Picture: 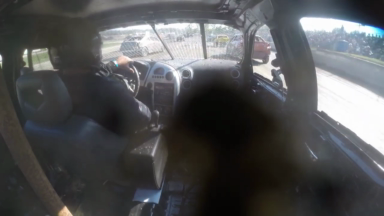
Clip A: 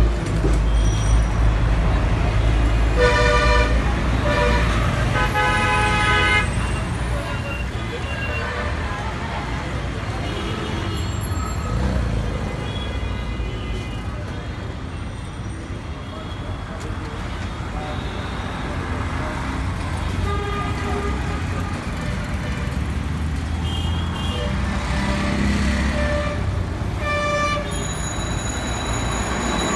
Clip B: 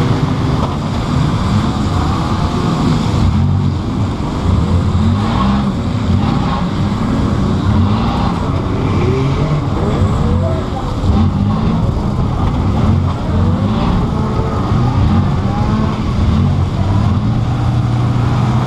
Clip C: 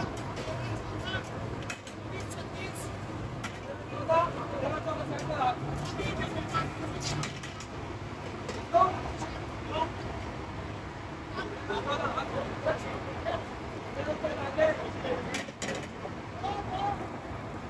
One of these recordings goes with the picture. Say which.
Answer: B